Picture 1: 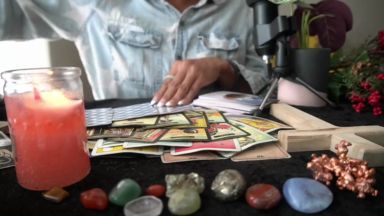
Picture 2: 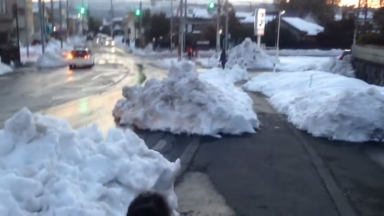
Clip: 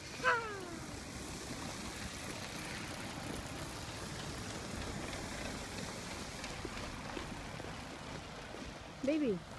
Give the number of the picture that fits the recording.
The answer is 2